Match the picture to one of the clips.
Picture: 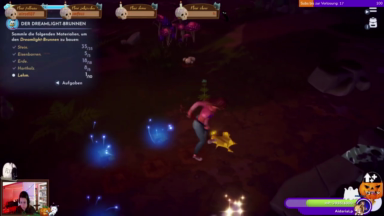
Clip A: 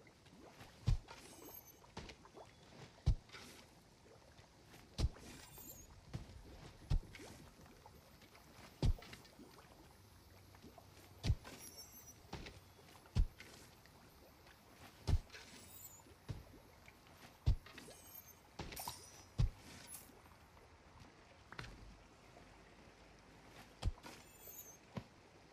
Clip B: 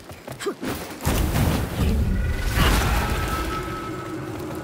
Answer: A